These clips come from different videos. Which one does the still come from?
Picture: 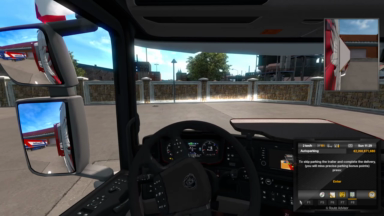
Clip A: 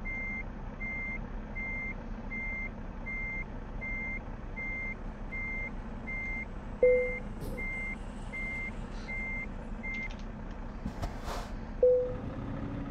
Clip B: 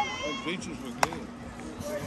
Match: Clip A